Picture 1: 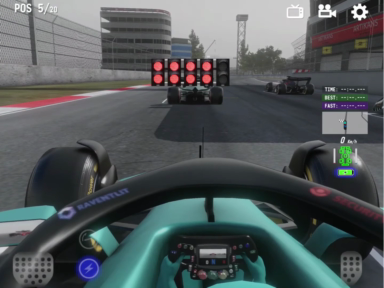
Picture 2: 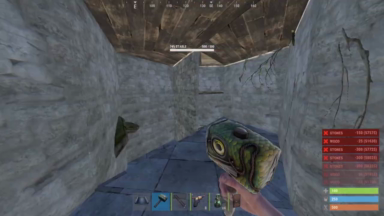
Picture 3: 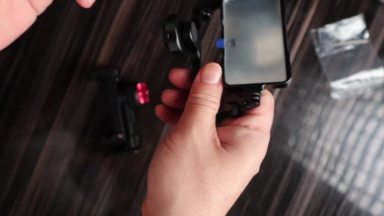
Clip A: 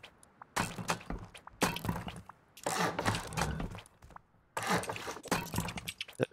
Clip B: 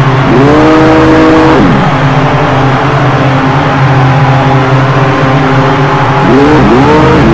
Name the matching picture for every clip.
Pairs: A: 2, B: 1